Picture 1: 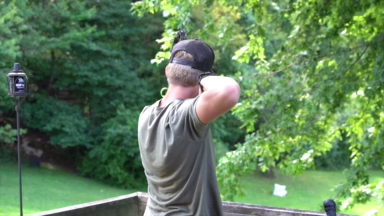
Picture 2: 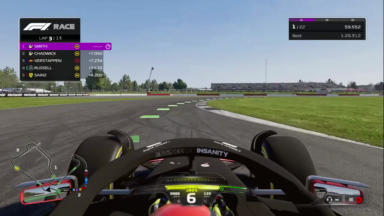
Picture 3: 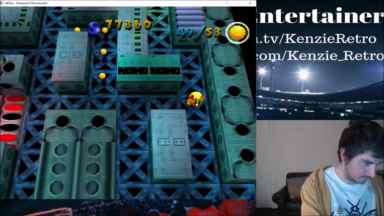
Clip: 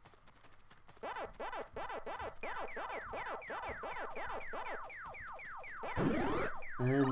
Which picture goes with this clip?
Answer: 3